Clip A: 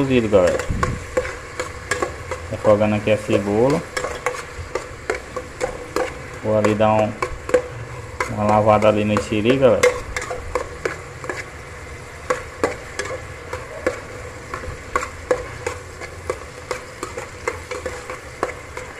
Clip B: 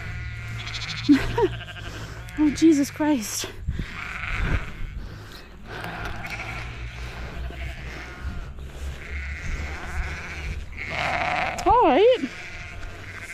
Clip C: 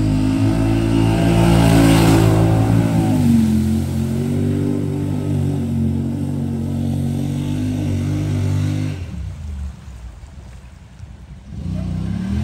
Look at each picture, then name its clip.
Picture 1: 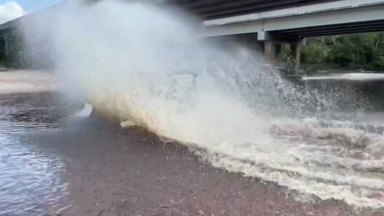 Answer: C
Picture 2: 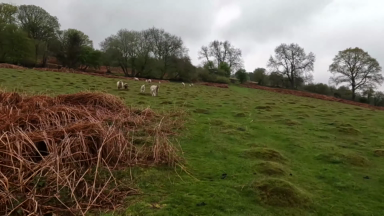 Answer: B